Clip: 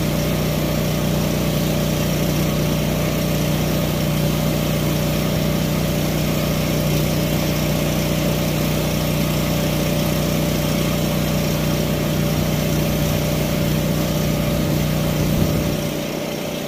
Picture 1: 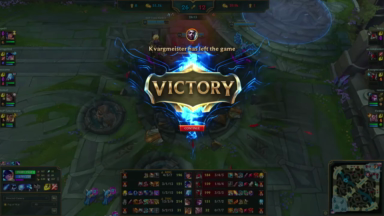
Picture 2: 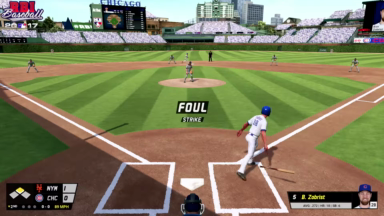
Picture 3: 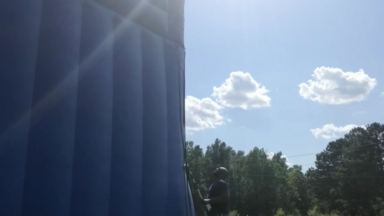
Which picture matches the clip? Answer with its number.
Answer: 3